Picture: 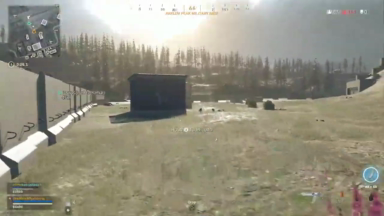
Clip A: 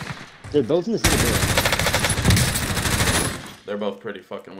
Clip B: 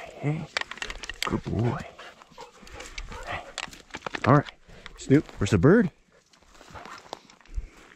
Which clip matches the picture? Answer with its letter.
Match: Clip A